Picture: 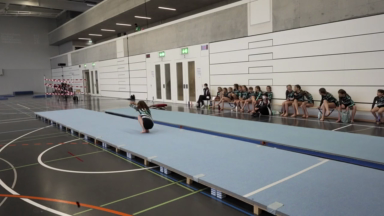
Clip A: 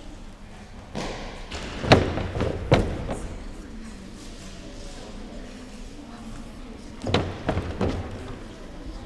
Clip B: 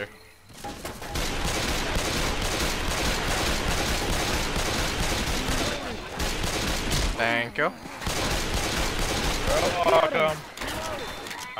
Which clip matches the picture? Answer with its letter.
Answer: A